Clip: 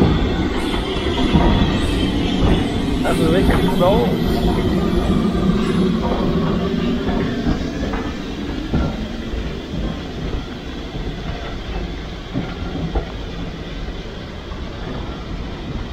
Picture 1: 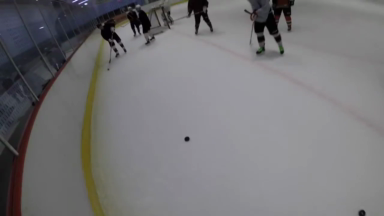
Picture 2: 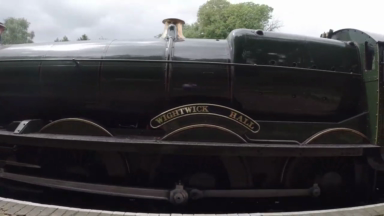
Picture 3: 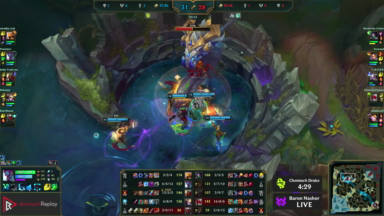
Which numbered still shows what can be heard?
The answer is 2